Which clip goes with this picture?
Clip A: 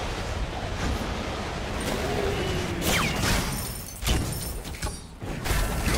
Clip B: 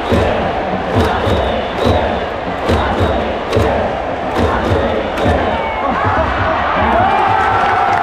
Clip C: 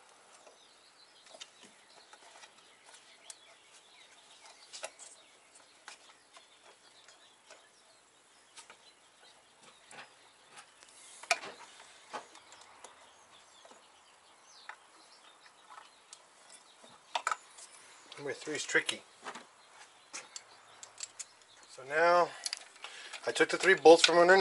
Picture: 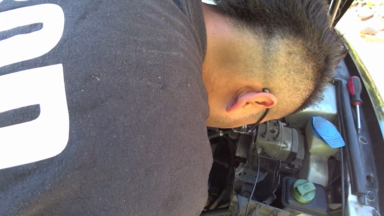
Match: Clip C